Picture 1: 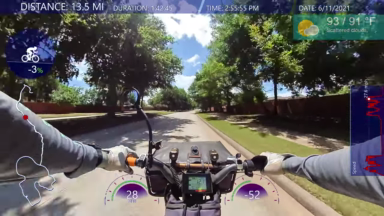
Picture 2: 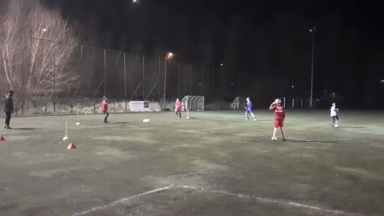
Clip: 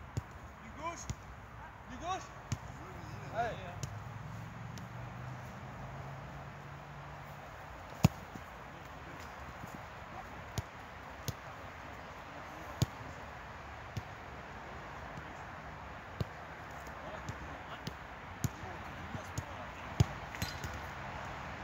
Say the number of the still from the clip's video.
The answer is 2